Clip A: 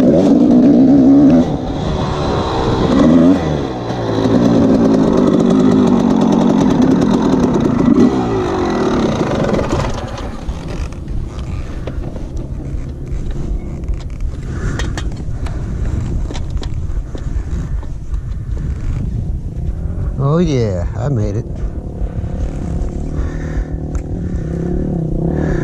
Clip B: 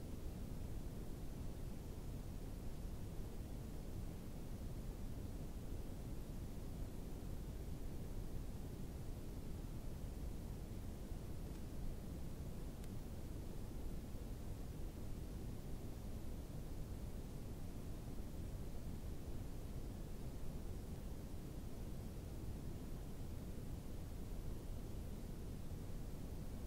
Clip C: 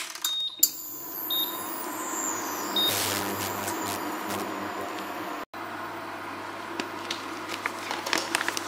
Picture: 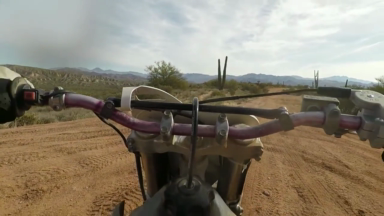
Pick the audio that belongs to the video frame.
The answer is A